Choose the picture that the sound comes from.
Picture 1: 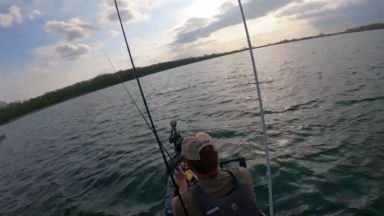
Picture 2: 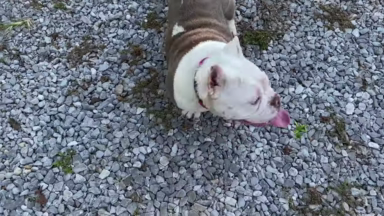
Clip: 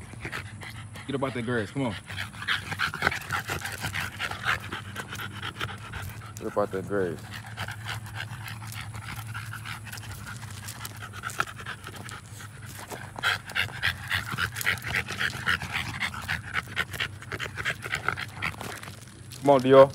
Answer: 2